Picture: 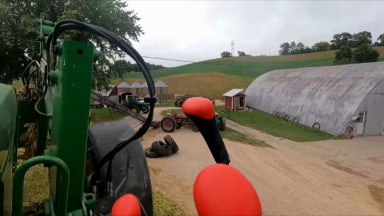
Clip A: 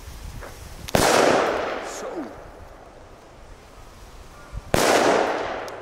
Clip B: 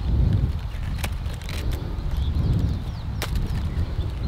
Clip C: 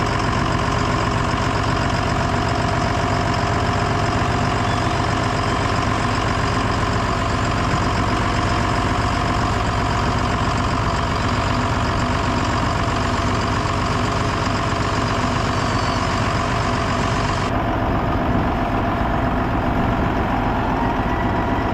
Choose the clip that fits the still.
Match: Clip C